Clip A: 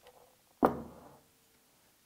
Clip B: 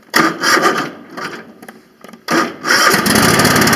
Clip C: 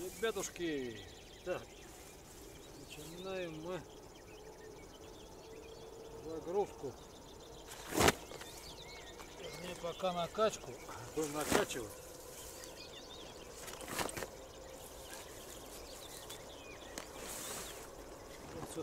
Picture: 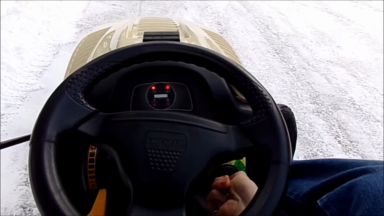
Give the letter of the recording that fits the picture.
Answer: B